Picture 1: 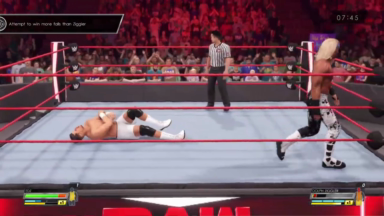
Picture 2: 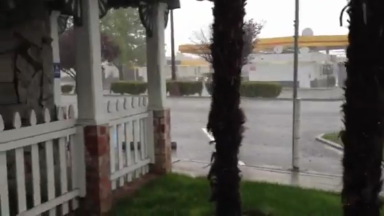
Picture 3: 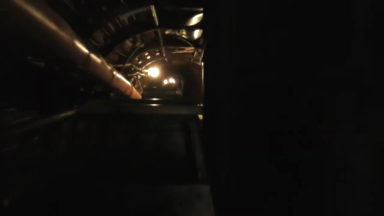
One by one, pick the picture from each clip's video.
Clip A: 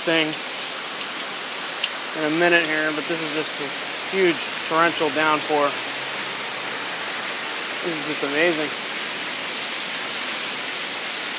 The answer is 2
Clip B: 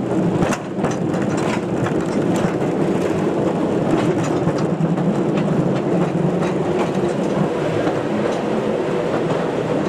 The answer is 3